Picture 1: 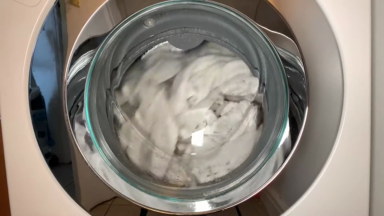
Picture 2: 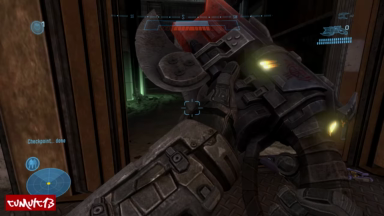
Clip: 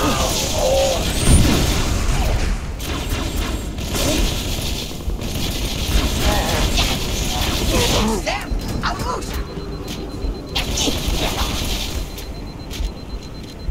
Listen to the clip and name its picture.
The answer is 2